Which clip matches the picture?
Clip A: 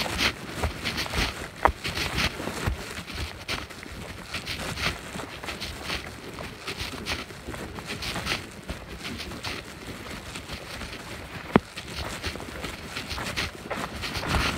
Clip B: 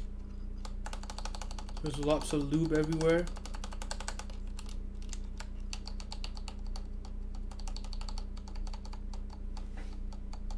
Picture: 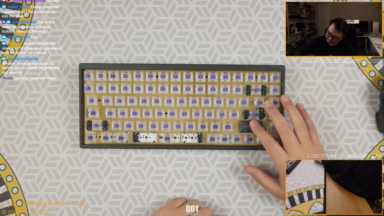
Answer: B